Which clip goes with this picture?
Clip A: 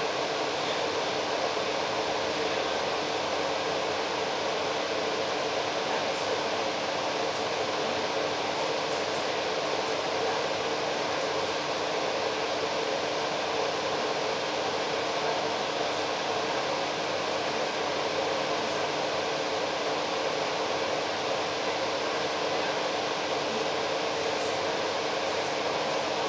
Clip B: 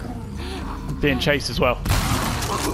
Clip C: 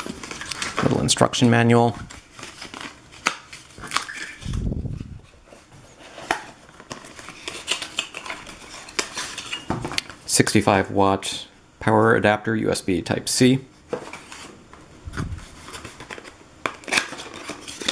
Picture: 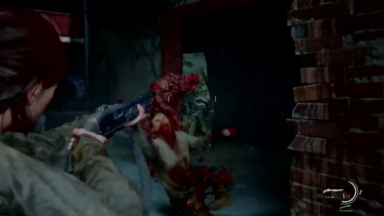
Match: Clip B